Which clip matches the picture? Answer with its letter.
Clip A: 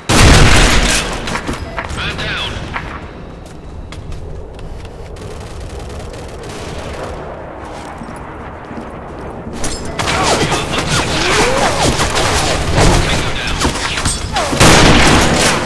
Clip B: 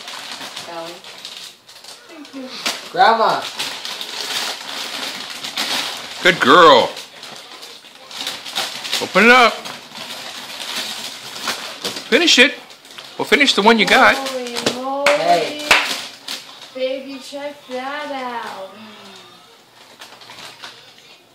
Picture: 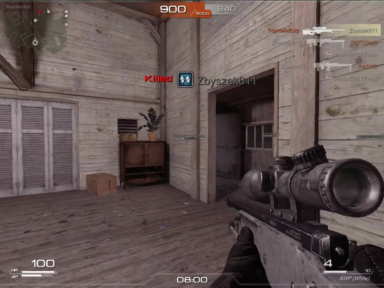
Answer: A